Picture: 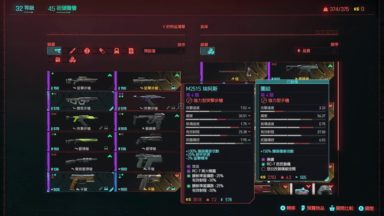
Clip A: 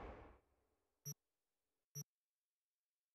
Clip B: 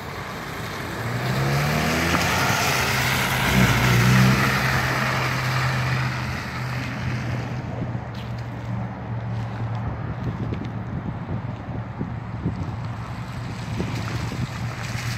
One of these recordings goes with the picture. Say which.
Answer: A